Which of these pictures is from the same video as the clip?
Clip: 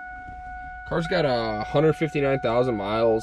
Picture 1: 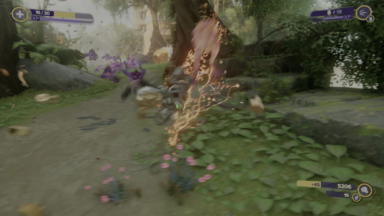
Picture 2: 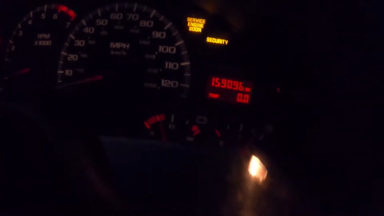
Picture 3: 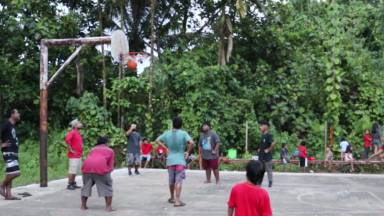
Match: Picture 2